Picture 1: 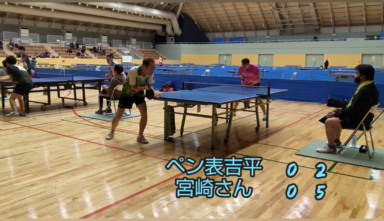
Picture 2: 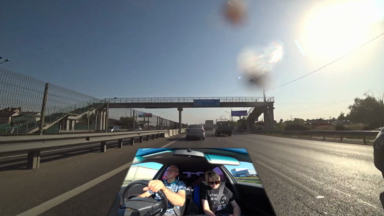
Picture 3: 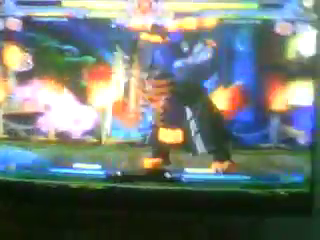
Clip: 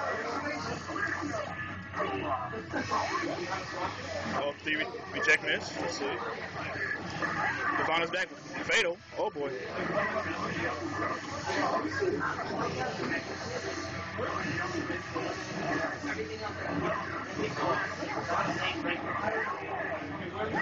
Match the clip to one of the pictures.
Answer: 3